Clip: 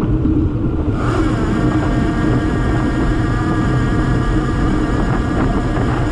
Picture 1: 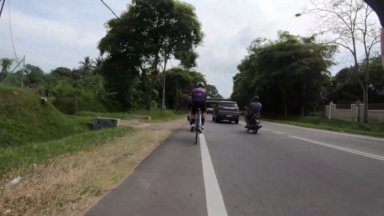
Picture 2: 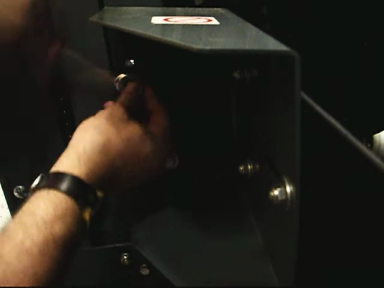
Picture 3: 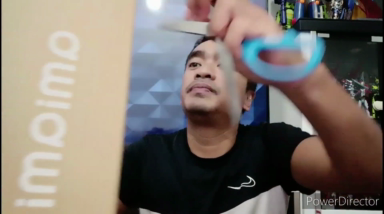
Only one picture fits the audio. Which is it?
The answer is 1